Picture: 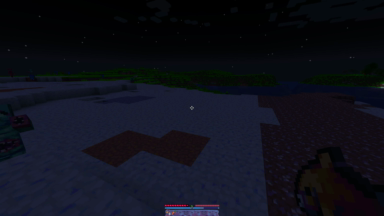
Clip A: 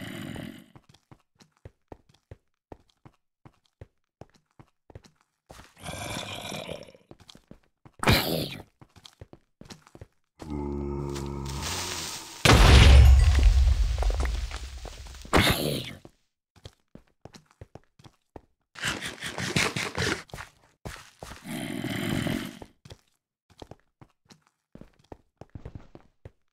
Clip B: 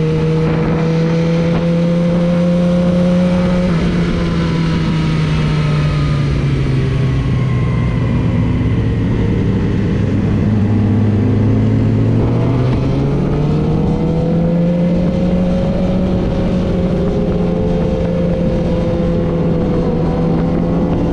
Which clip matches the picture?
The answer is A